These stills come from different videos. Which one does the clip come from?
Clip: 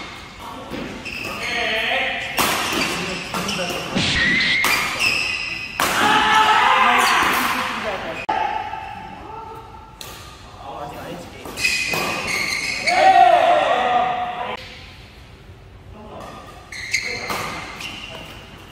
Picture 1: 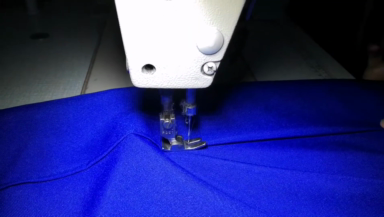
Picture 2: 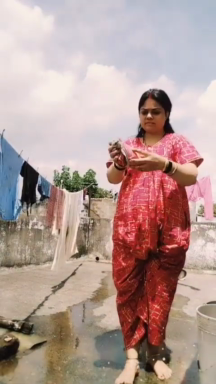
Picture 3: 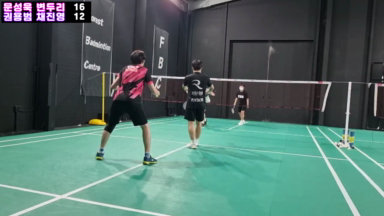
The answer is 3